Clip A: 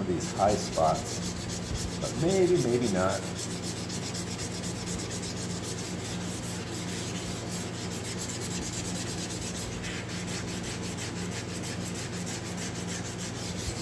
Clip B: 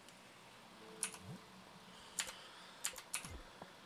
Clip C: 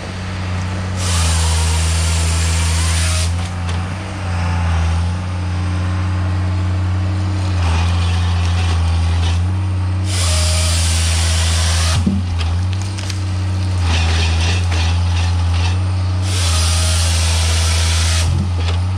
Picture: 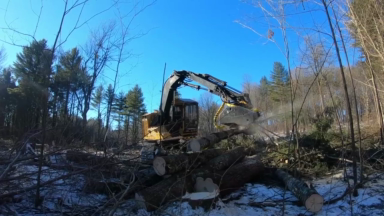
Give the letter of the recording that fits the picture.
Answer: C